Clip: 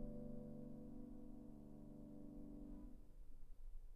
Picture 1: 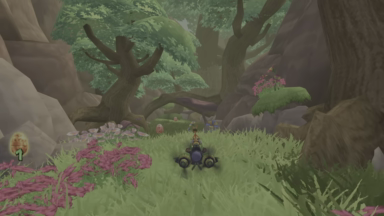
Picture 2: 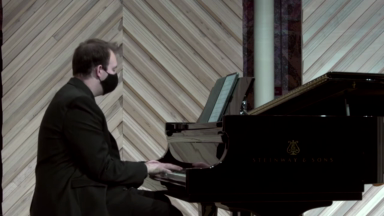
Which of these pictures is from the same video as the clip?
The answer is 2